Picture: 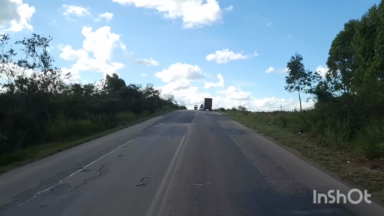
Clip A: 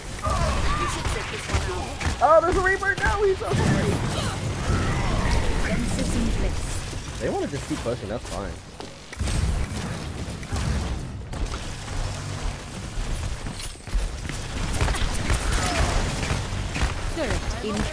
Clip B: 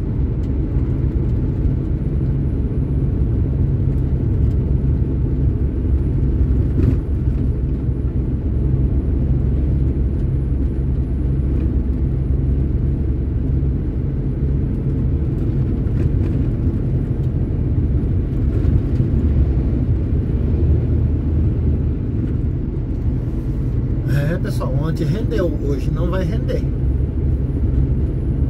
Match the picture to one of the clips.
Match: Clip B